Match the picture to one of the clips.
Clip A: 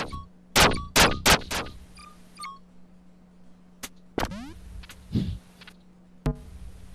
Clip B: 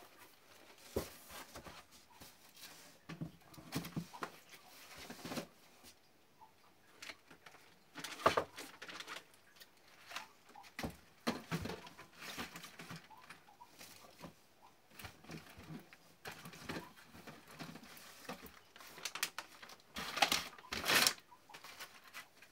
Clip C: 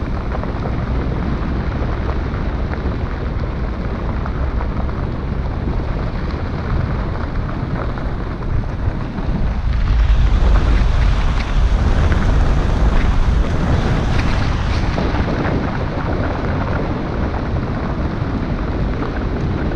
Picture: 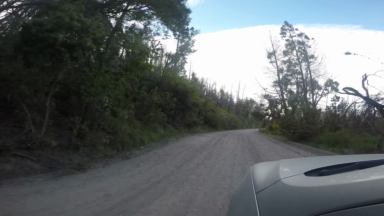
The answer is C